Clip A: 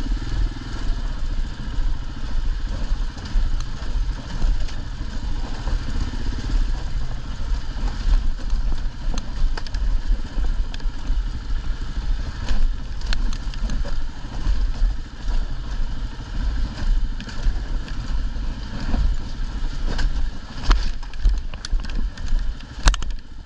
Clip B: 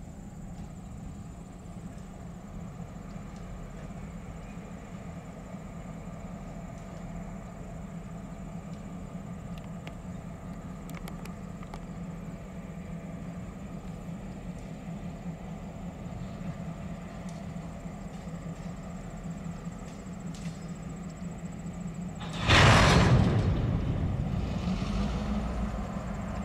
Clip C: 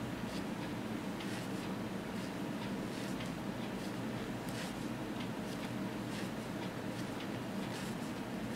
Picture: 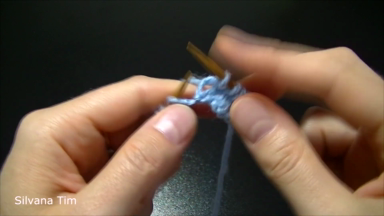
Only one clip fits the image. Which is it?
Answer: C